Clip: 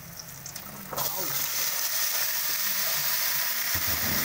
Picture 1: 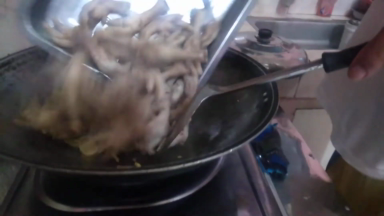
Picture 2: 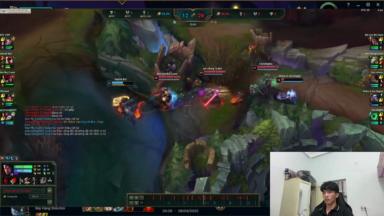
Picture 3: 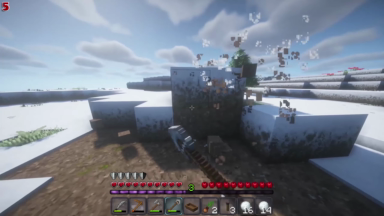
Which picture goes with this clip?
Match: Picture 1